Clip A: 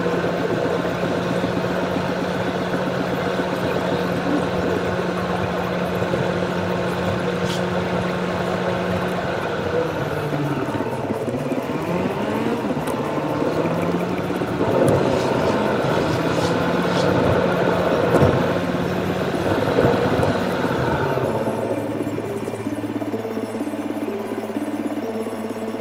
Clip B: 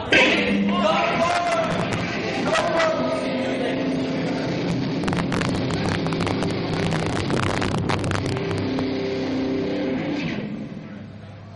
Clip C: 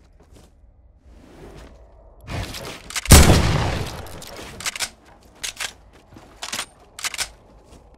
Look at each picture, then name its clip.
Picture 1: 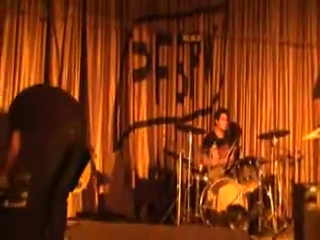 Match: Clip B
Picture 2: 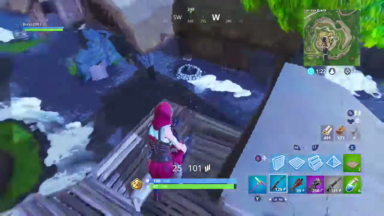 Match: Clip C